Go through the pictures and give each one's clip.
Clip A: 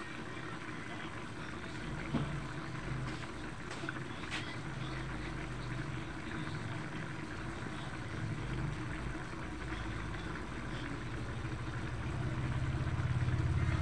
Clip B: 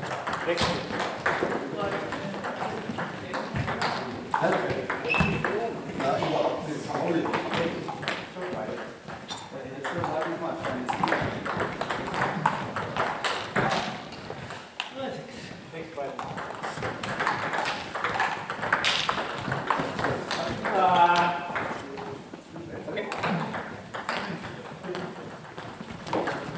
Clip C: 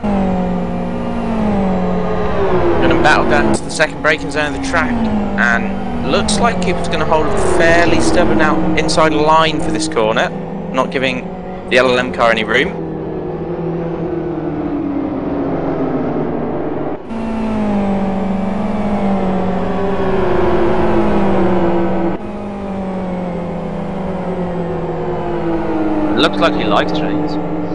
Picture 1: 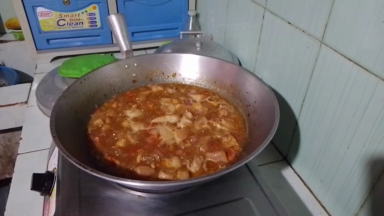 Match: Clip A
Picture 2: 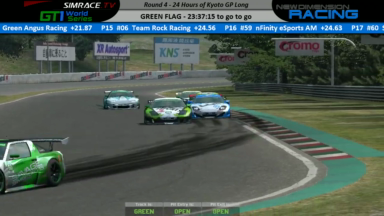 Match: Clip C